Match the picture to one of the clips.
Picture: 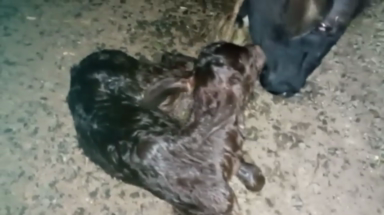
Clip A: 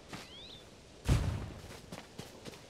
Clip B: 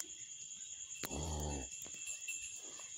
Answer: B